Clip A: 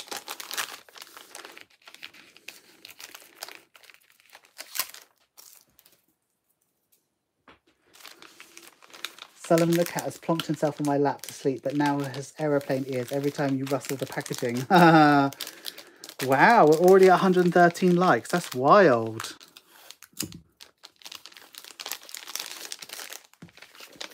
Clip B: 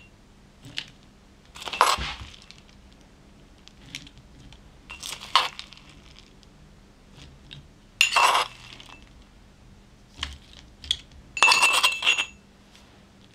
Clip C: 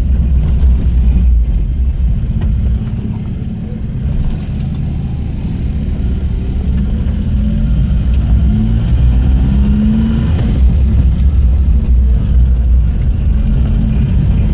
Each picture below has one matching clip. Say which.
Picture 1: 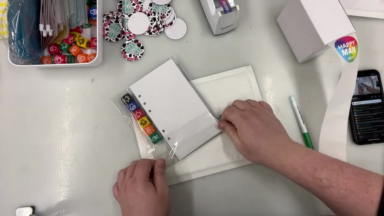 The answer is A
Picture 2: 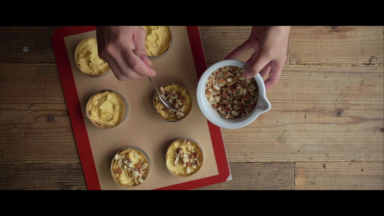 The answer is B